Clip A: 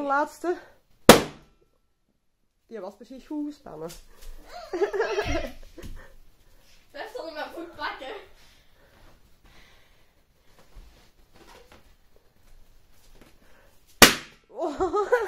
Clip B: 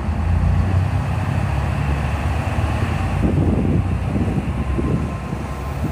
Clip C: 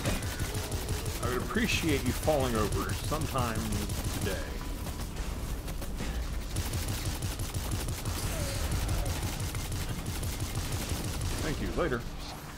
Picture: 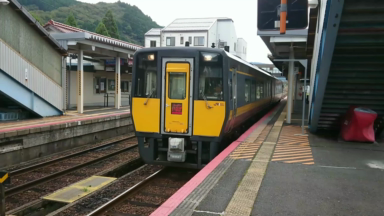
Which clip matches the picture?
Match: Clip B